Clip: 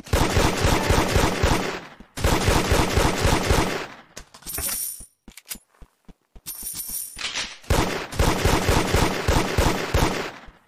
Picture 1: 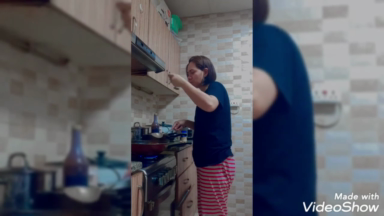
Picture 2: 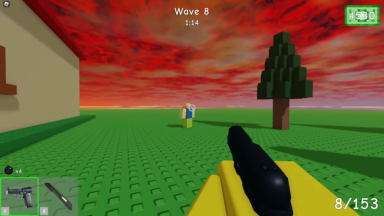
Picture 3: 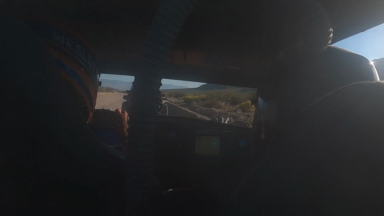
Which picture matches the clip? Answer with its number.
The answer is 2